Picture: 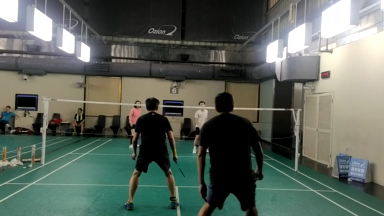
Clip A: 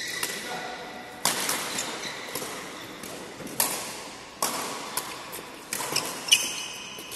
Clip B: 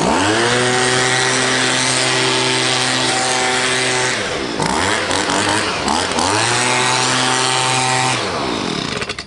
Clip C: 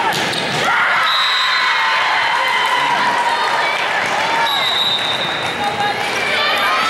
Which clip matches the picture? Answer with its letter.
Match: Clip A